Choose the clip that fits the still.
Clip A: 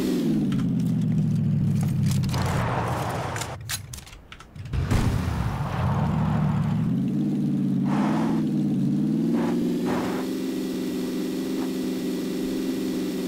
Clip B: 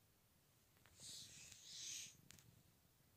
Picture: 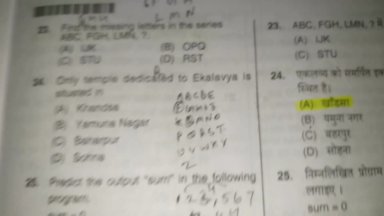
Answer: B